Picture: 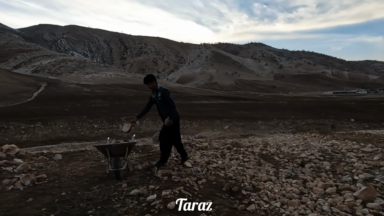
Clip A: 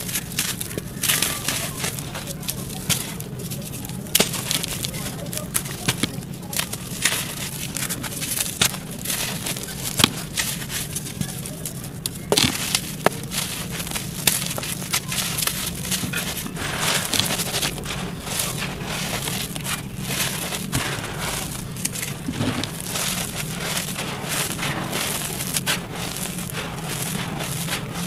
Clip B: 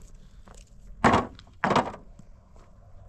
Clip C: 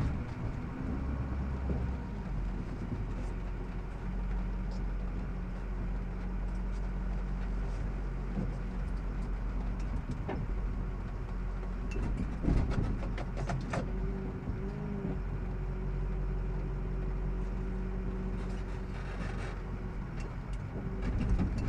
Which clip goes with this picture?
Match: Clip B